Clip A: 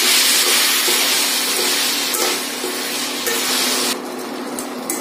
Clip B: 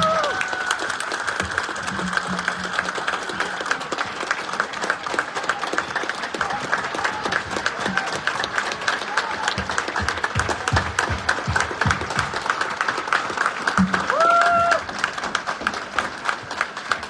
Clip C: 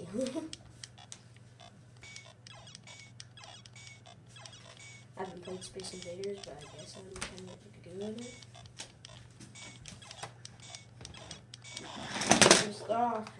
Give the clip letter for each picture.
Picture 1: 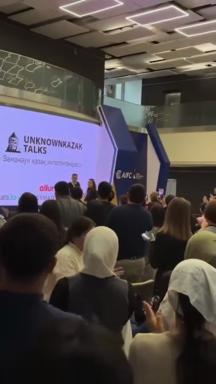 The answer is B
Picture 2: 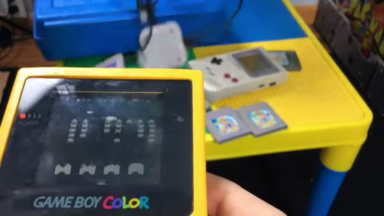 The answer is C